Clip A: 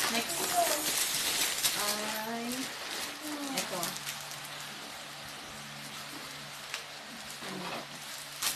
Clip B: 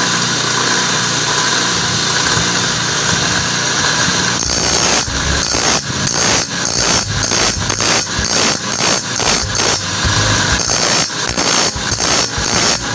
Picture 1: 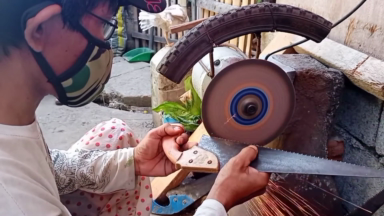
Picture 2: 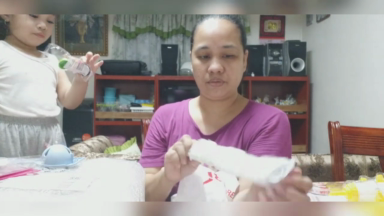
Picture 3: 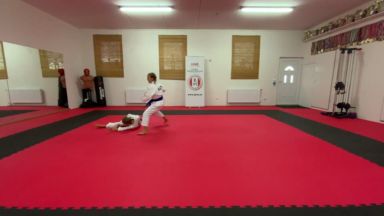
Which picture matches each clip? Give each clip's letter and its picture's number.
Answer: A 2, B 1